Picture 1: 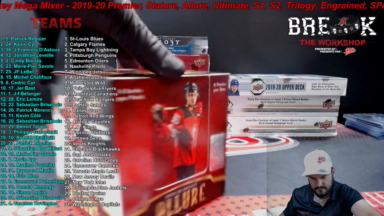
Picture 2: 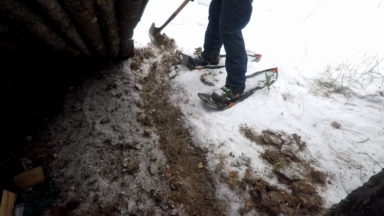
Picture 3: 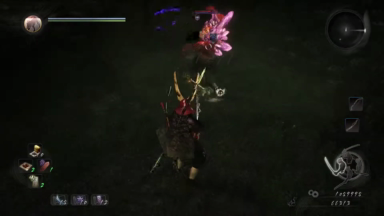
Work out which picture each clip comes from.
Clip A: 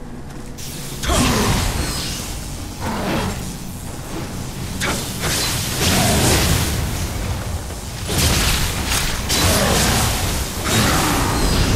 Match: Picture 3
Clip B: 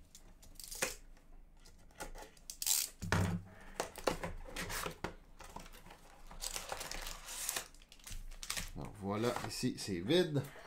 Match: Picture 1